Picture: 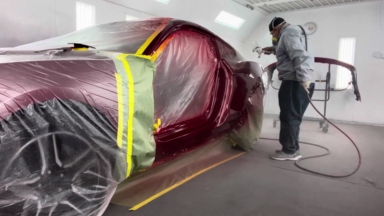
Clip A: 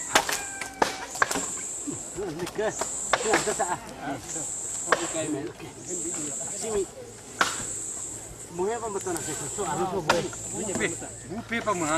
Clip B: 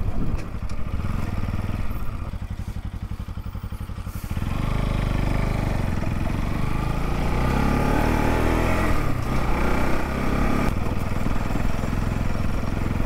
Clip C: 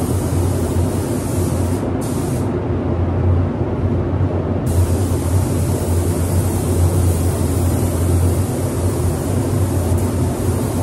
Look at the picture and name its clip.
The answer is C